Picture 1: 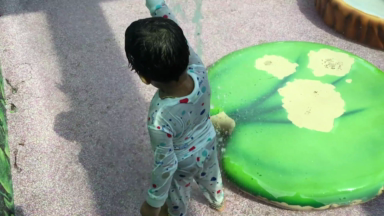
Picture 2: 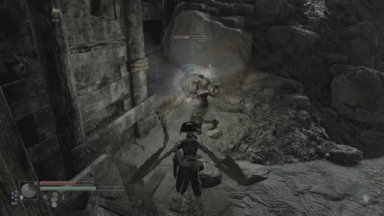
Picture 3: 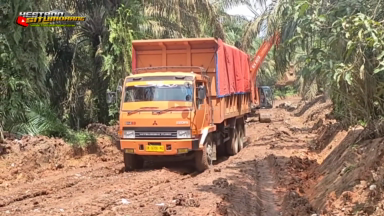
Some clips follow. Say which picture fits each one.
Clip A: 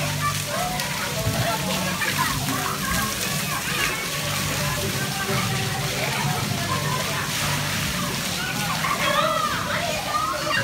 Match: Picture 1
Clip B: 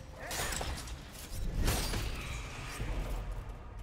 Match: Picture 2